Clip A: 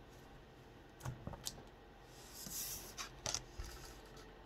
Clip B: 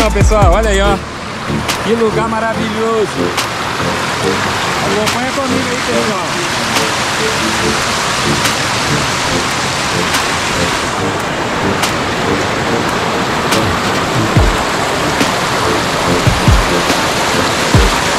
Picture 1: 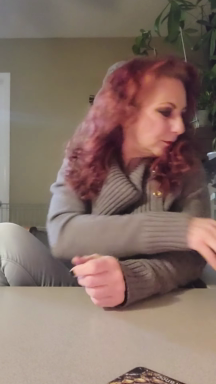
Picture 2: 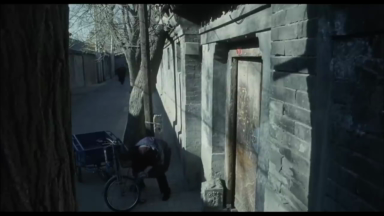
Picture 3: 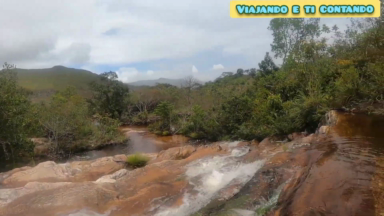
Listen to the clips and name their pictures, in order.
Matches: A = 1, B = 3